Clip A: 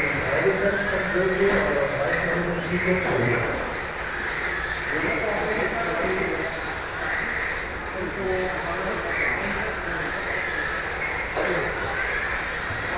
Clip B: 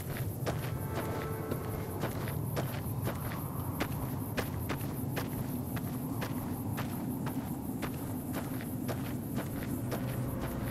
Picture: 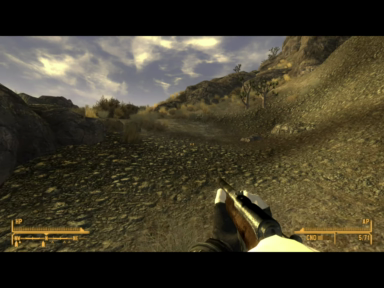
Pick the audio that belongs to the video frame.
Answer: B